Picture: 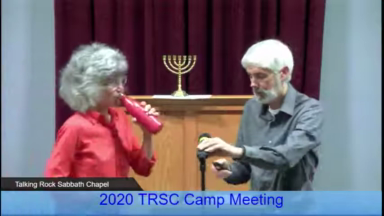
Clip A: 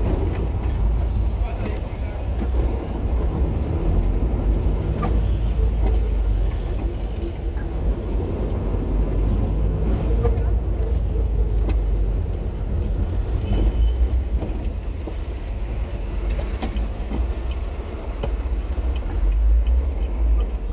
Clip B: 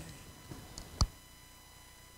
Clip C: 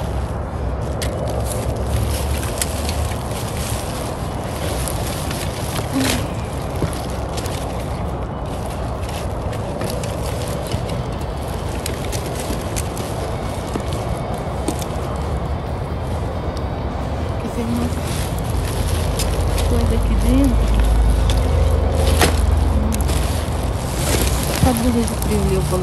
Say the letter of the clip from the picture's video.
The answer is B